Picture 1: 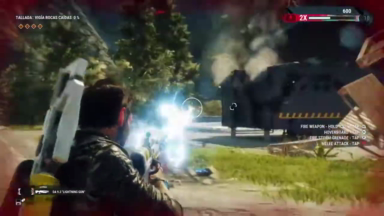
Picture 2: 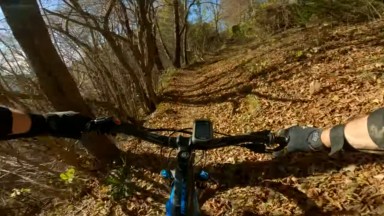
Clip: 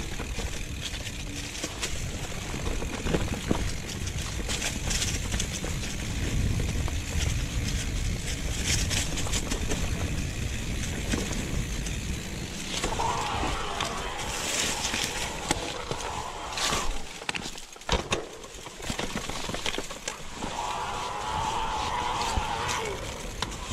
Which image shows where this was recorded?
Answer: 2